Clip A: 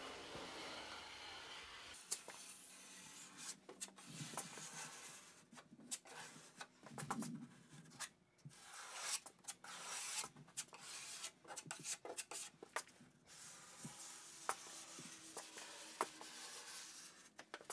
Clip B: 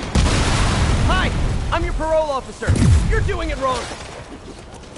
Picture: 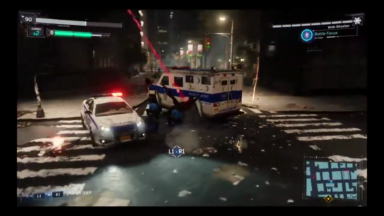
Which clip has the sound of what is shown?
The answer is B